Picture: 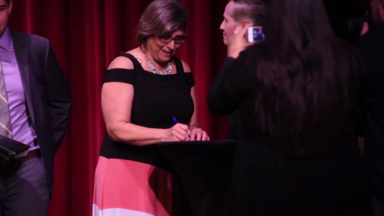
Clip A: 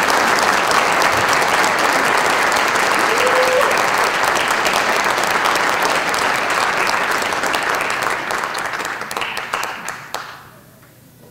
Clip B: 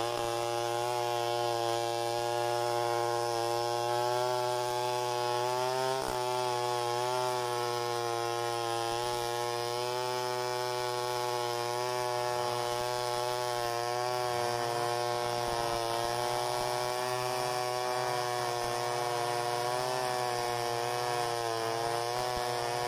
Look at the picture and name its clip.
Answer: A